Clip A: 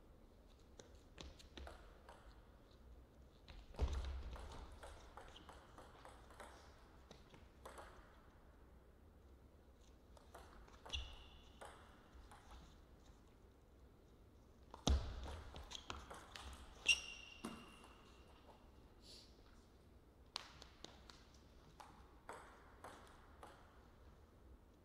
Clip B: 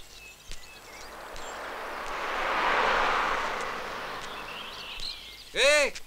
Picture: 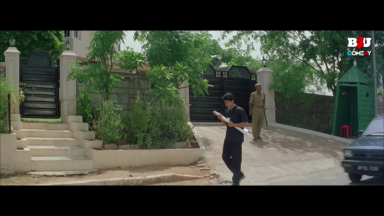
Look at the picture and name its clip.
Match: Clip B